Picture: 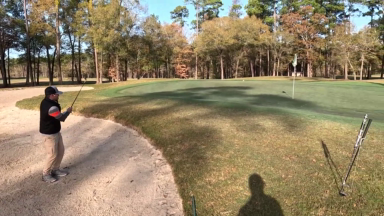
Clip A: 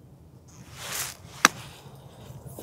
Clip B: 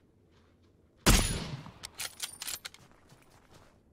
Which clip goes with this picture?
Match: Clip A